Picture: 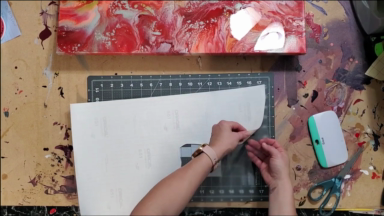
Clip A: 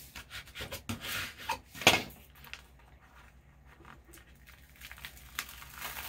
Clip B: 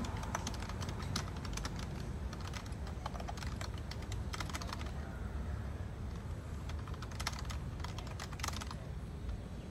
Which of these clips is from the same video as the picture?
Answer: A